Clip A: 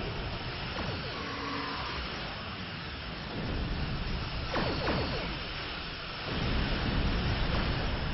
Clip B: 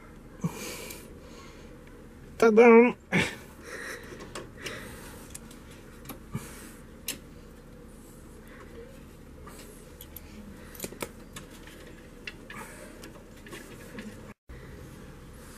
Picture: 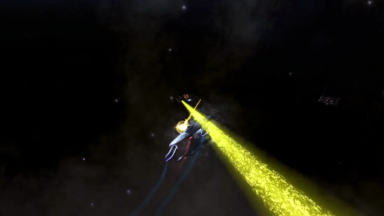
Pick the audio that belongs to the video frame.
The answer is A